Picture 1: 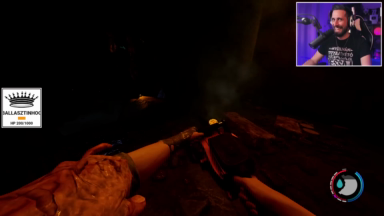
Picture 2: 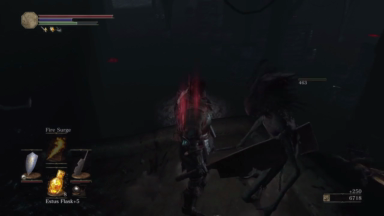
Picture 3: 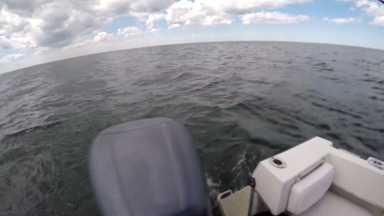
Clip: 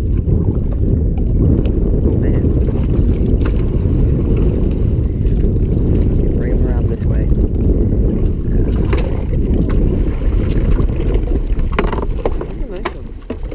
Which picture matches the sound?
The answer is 3